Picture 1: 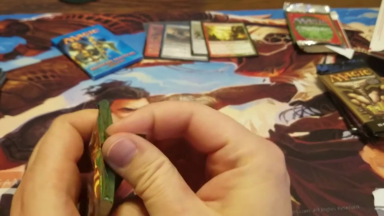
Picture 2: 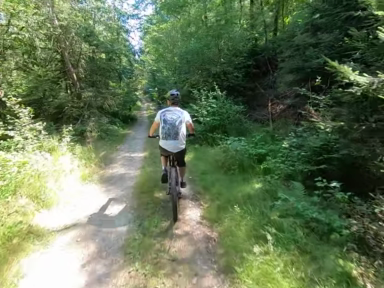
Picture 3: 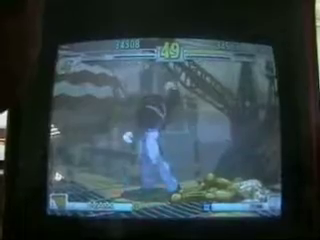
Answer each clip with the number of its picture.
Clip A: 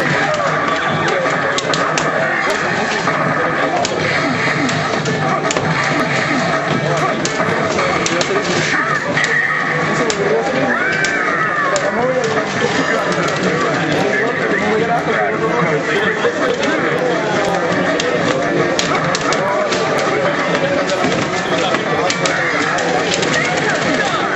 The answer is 3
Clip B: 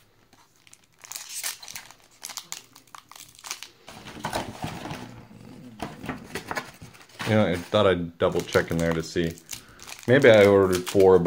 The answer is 1